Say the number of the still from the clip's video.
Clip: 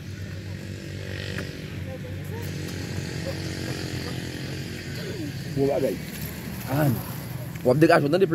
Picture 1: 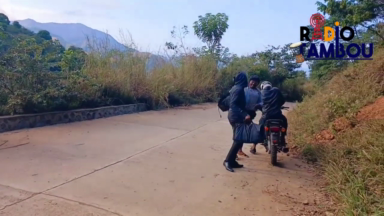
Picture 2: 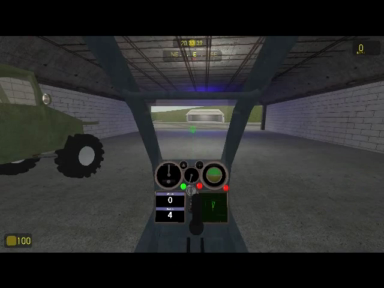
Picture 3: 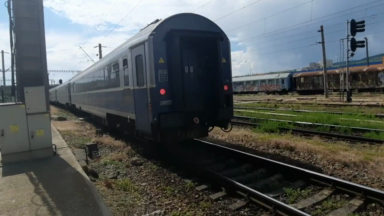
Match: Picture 1